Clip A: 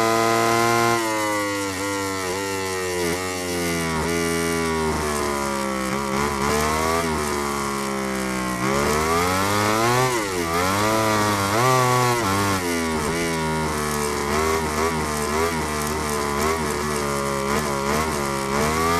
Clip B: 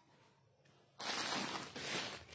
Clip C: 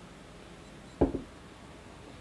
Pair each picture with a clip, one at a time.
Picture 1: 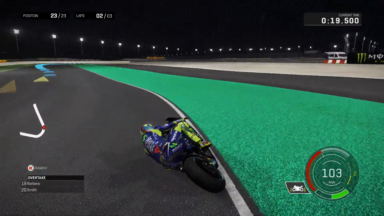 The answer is A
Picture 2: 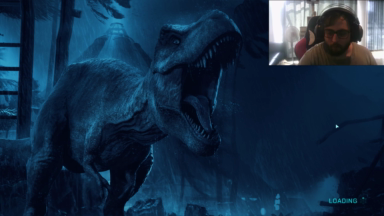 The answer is C